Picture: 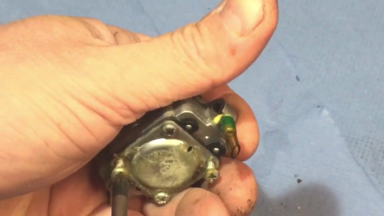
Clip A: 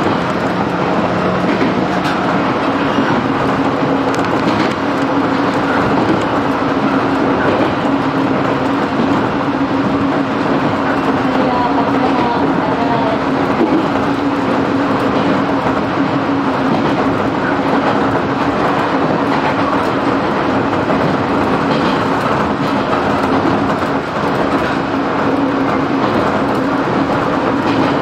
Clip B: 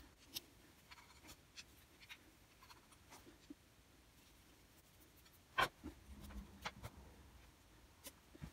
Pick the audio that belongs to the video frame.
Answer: B